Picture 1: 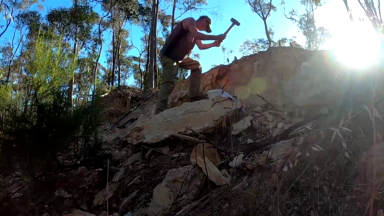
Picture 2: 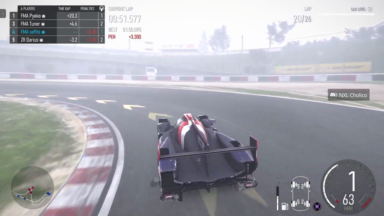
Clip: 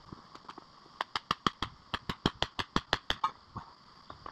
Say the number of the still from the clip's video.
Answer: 1